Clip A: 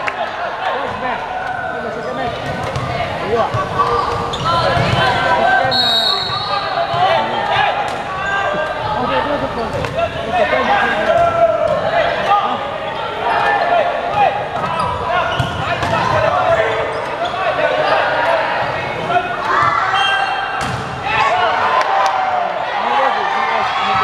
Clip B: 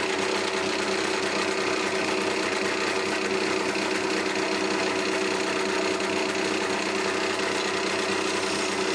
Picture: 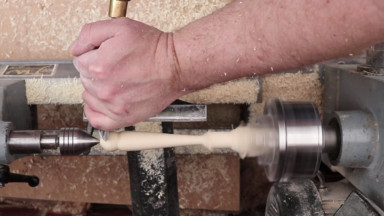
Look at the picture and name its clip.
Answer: B